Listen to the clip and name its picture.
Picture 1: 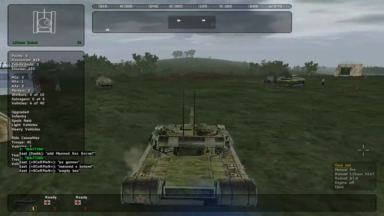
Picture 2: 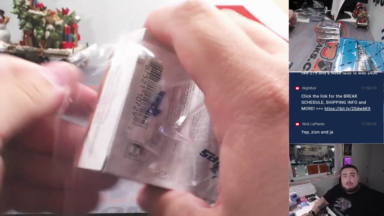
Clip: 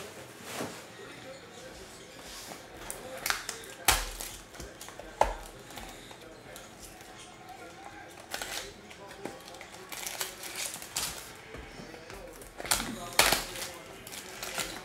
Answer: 2